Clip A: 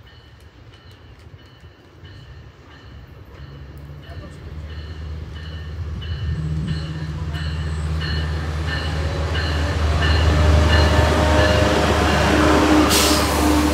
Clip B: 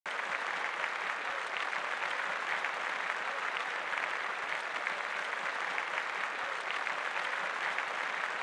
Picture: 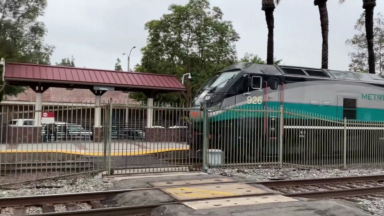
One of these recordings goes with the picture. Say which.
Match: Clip A